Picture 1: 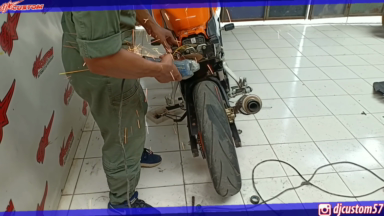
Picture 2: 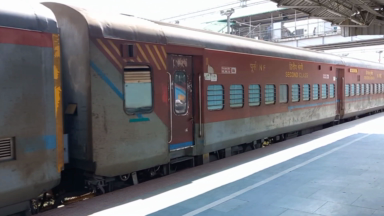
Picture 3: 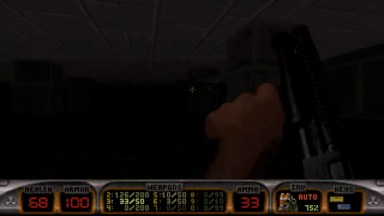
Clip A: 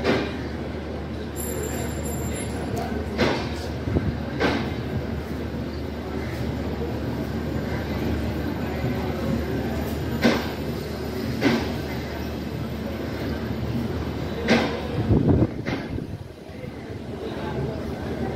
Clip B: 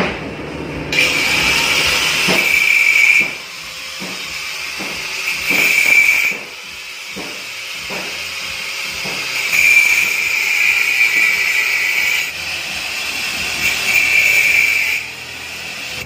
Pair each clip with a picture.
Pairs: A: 2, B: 1